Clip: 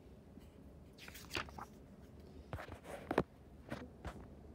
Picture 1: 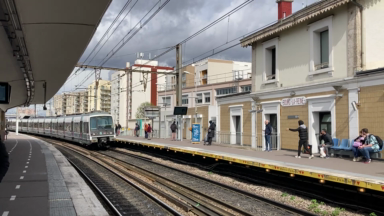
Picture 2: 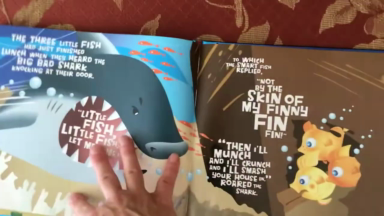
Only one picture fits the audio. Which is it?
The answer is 2